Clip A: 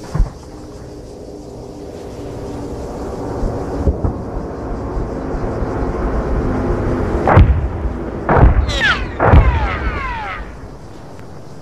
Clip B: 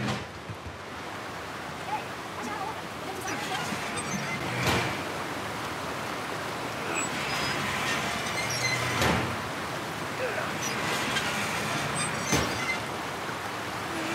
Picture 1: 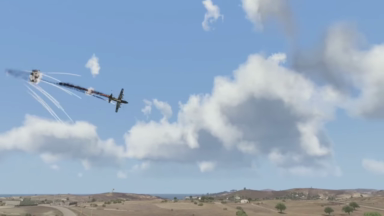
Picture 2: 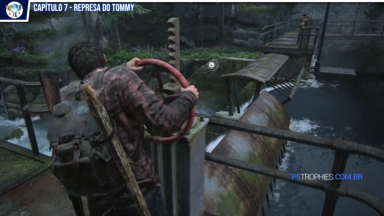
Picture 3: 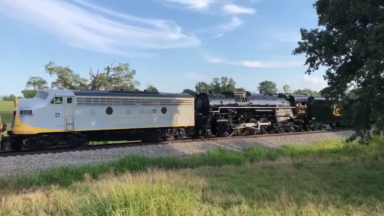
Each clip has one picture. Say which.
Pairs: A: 1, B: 2